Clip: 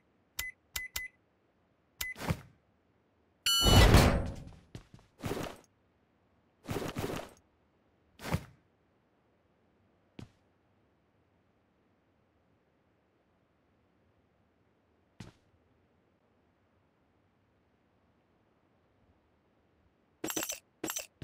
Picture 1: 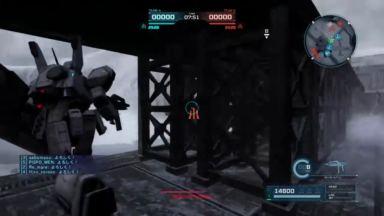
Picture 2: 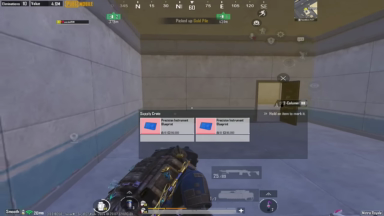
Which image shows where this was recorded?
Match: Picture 2